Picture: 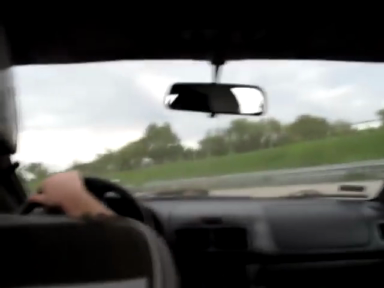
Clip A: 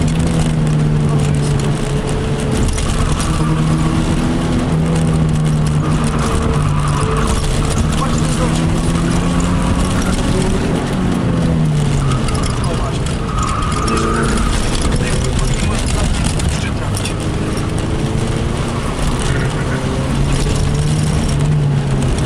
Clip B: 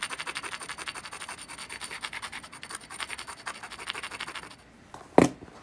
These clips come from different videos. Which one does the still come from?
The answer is A